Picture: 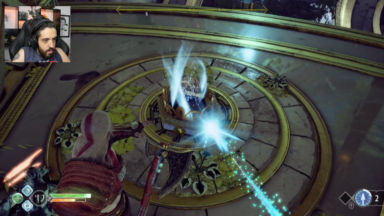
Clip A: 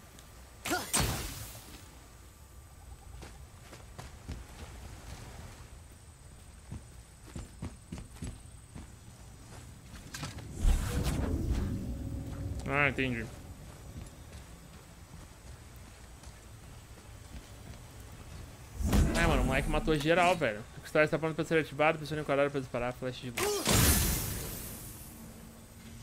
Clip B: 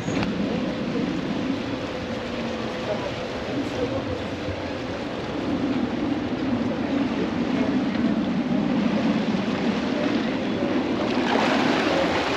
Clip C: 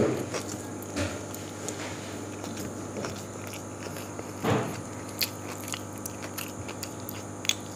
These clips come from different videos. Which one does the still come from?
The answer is A